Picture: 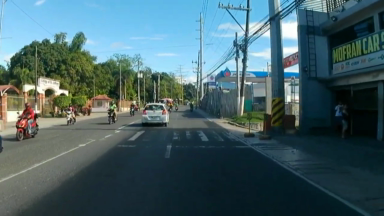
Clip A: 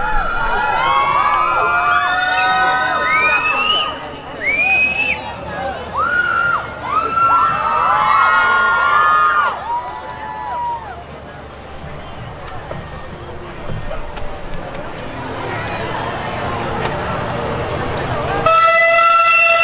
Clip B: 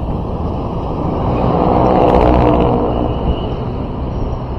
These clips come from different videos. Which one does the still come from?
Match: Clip B